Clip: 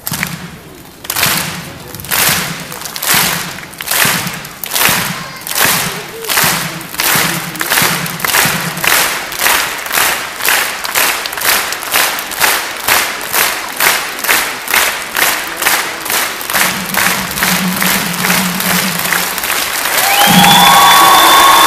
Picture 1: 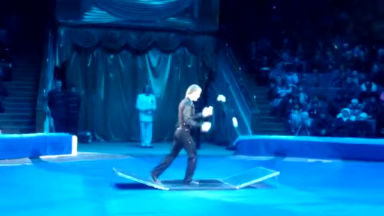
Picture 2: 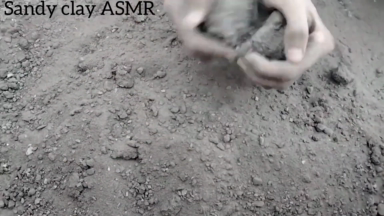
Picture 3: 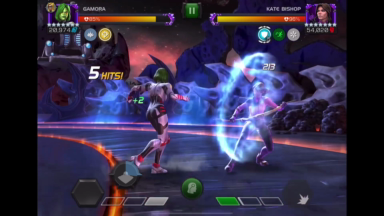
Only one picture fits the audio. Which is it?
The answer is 1